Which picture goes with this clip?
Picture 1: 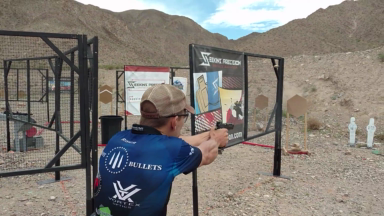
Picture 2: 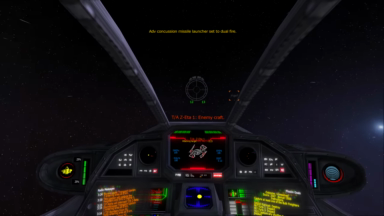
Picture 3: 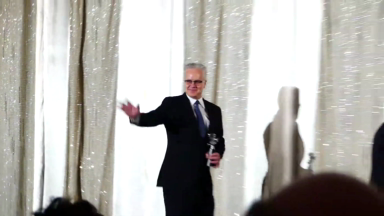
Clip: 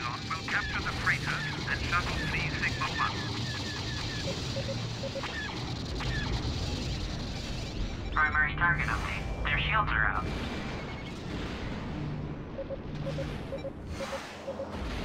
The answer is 2